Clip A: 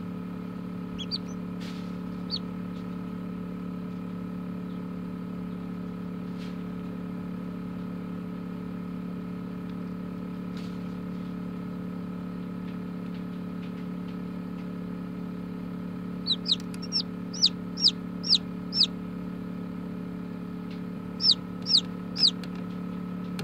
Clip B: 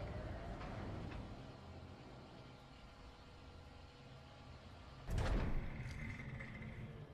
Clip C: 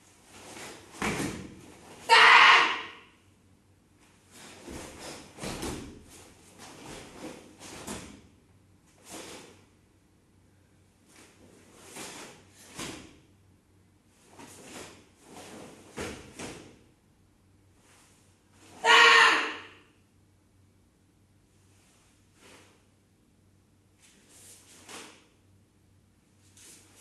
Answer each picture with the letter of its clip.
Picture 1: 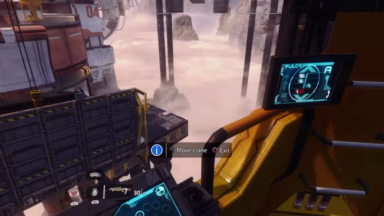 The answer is B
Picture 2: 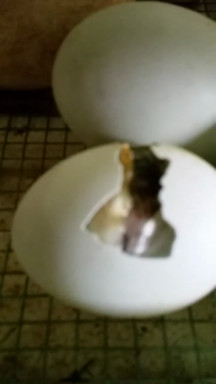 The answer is A